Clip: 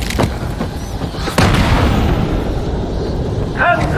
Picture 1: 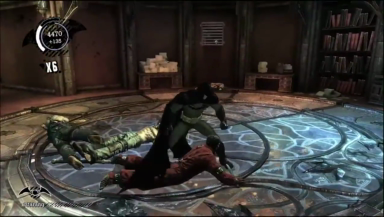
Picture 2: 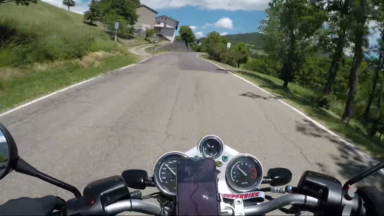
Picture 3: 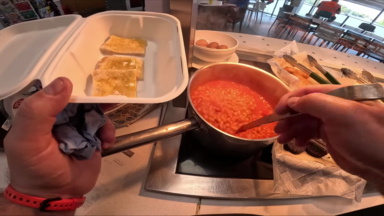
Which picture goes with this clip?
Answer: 1